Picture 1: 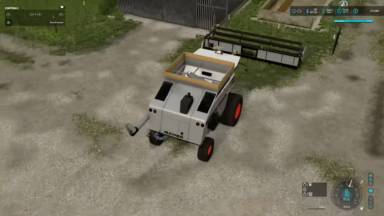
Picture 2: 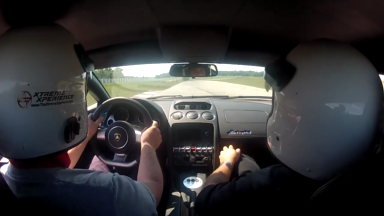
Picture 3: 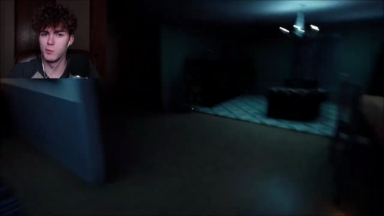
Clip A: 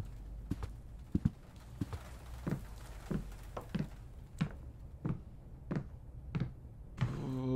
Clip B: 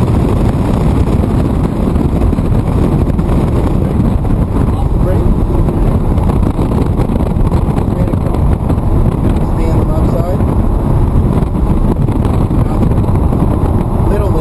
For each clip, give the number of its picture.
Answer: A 3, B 2